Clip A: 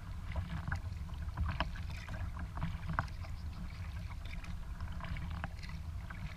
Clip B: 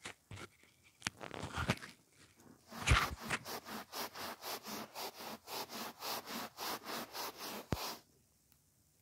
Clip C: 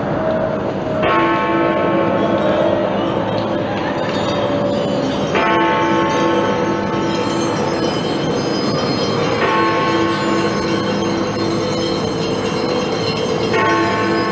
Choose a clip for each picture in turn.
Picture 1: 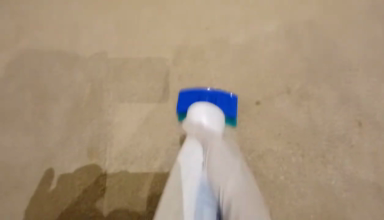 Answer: B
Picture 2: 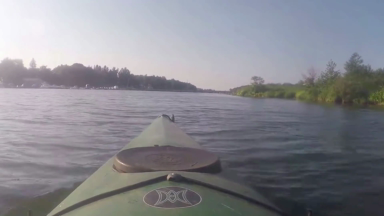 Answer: A